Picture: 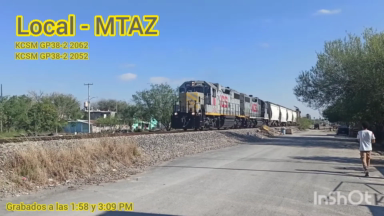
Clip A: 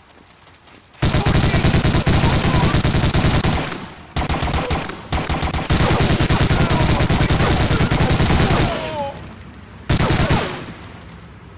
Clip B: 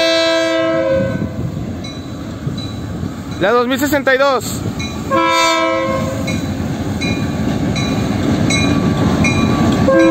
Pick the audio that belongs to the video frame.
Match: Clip B